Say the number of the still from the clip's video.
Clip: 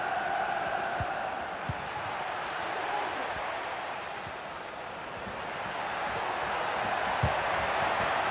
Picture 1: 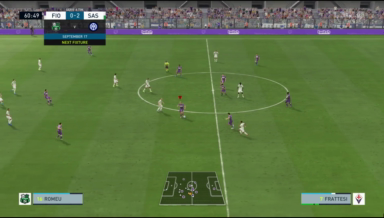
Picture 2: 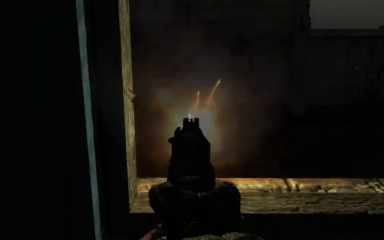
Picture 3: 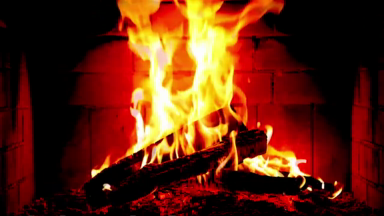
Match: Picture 1